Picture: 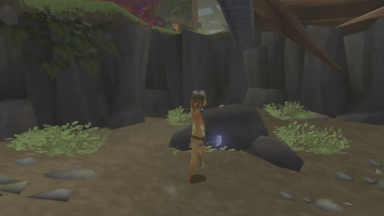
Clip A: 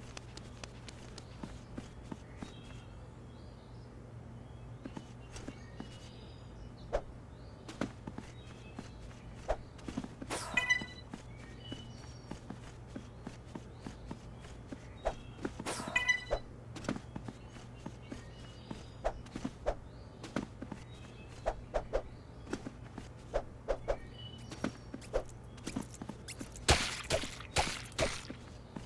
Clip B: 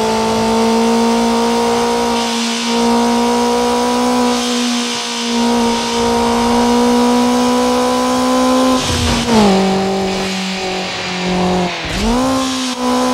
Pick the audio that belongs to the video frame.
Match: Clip A